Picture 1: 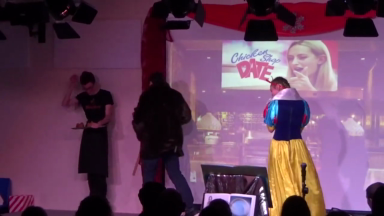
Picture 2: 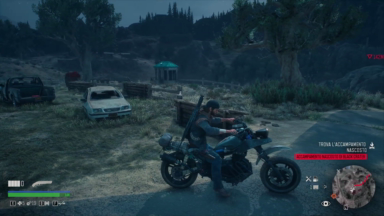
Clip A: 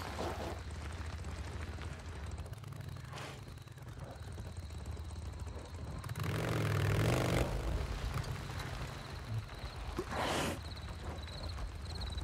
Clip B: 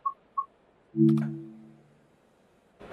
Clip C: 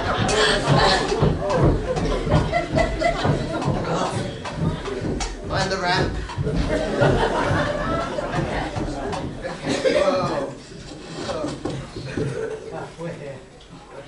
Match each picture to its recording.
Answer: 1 C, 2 A